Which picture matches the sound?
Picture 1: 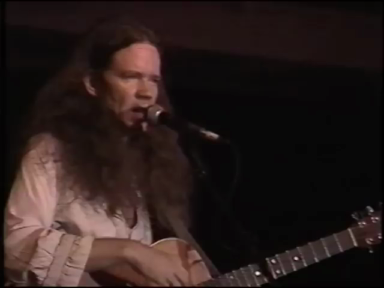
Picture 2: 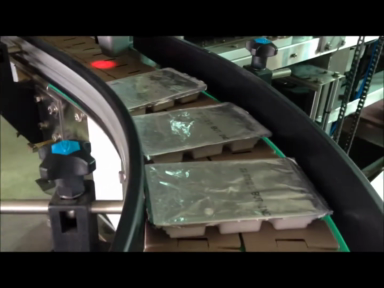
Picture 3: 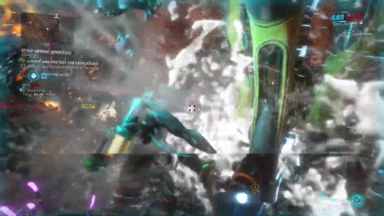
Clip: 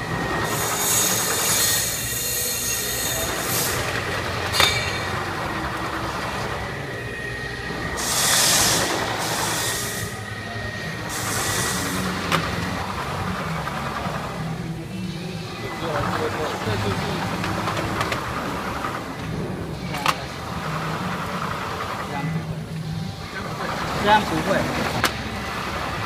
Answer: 2